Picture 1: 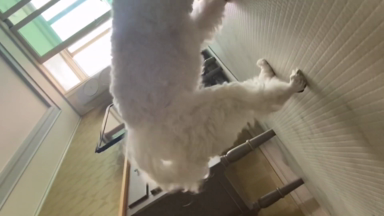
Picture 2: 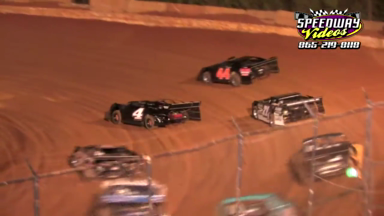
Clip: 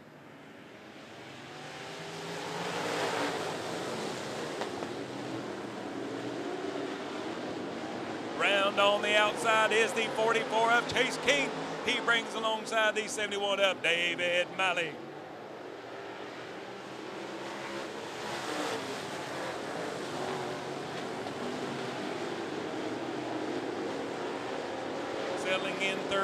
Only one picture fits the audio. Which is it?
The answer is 2